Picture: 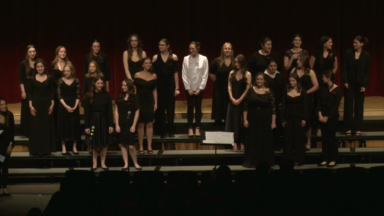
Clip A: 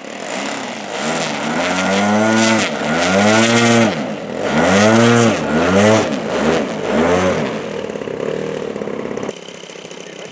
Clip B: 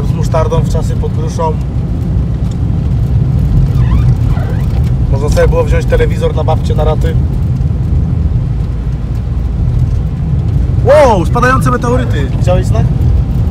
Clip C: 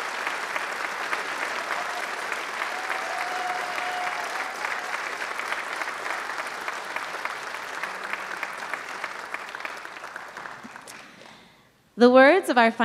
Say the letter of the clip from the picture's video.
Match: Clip C